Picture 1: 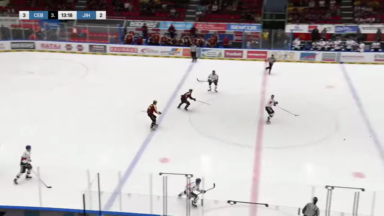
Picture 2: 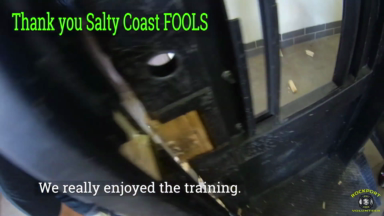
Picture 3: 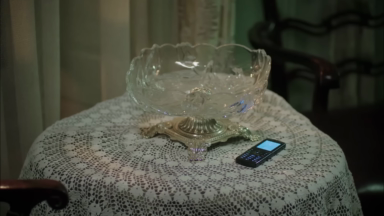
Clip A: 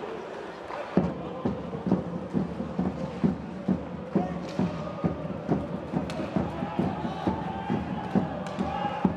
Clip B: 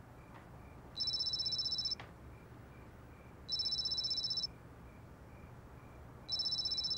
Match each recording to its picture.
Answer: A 1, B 3